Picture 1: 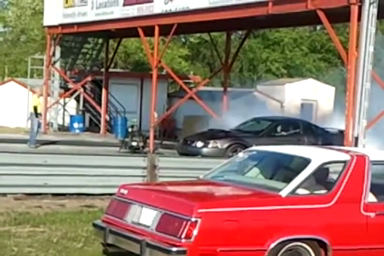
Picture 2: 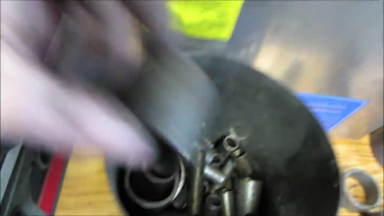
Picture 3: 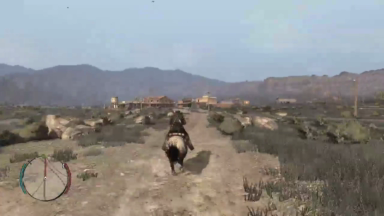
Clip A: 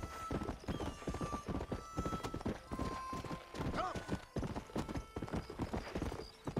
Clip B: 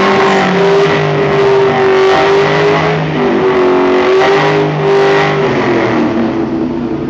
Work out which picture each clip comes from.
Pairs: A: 3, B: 1